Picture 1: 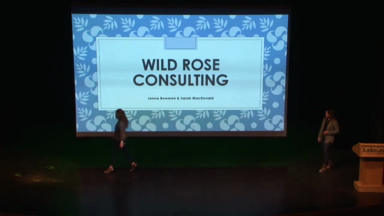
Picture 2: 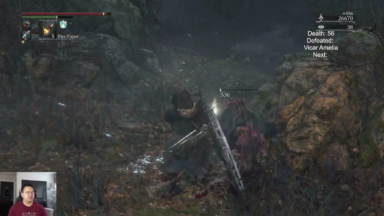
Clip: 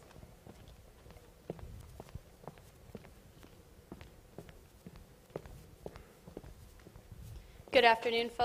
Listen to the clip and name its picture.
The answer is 1